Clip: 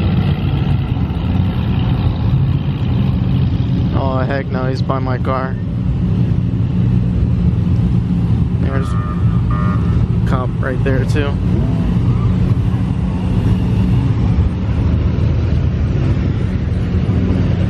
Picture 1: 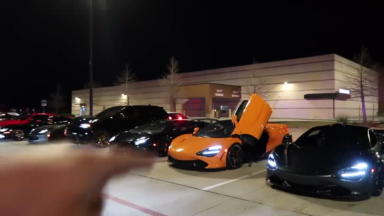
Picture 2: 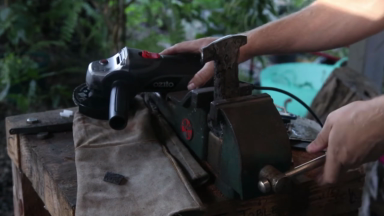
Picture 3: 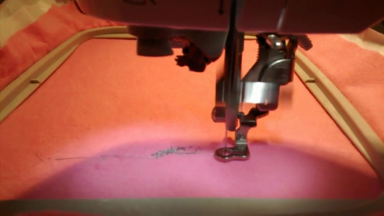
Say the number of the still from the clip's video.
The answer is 1